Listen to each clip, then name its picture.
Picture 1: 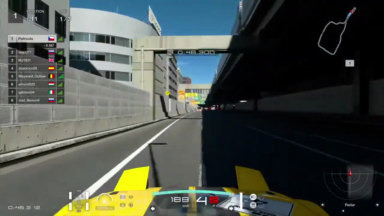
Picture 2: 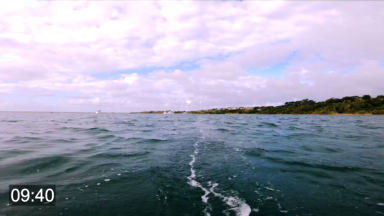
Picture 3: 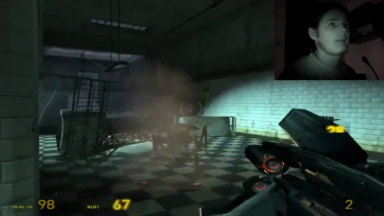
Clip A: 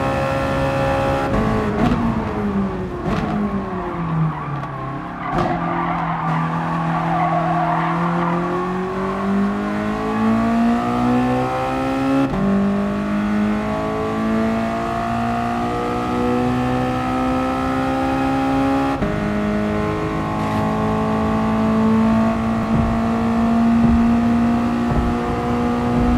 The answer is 1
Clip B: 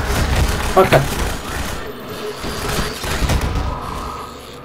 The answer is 3